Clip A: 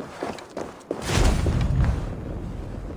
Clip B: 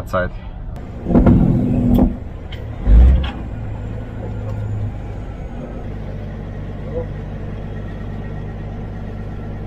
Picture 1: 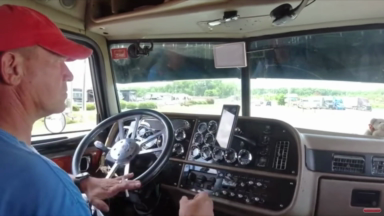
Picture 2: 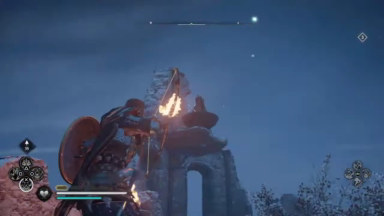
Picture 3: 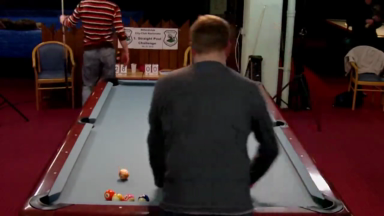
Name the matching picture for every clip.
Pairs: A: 2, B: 1